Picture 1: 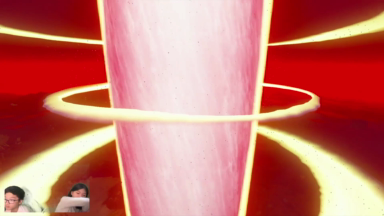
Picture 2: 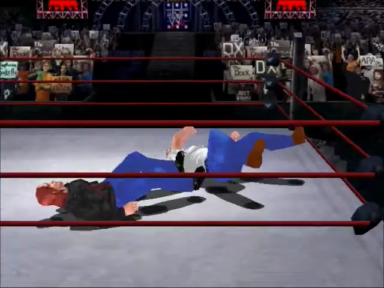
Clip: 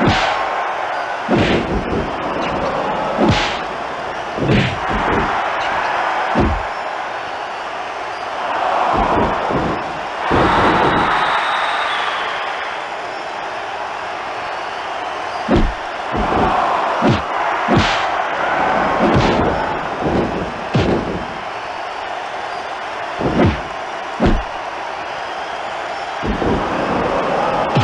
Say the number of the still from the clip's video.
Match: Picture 2